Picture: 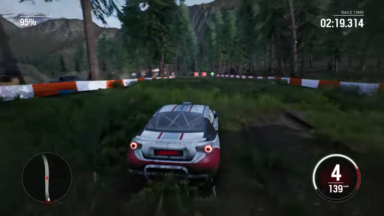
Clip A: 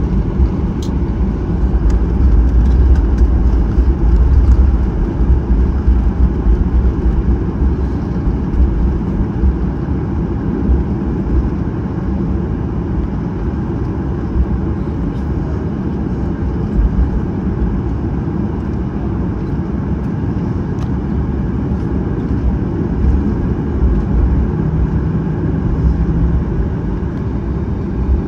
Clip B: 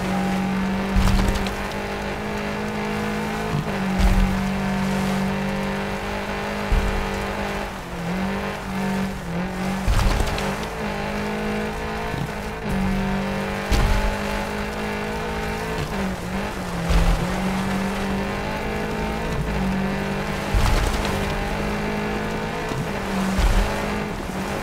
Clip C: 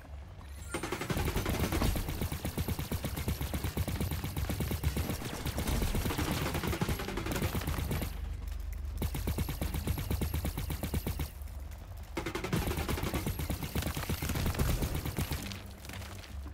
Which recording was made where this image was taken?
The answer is B